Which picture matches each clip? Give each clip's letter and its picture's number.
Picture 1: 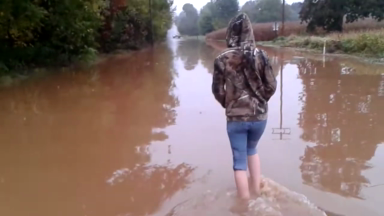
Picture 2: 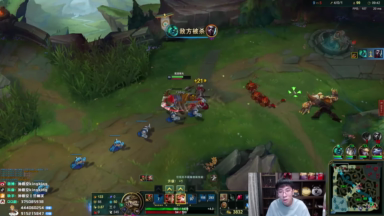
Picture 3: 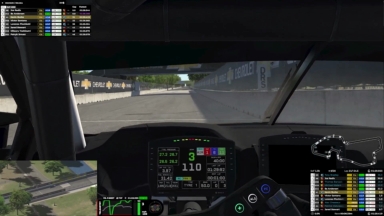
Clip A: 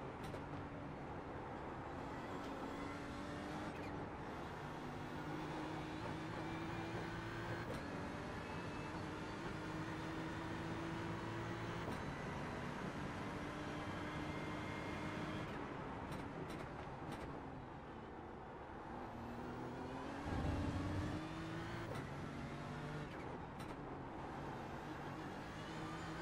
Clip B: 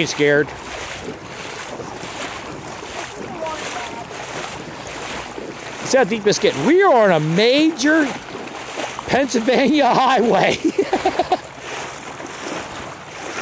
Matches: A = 3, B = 1